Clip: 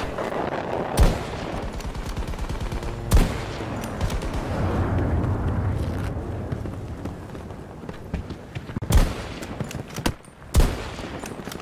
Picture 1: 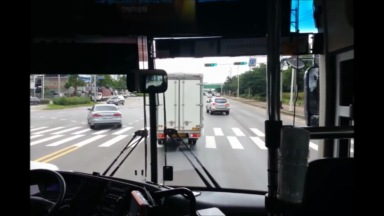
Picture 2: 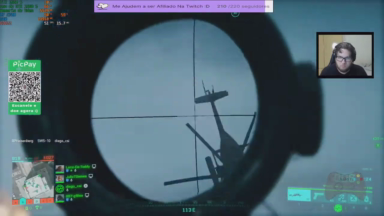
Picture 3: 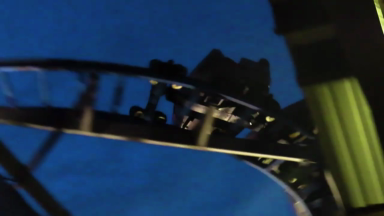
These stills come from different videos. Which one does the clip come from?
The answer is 2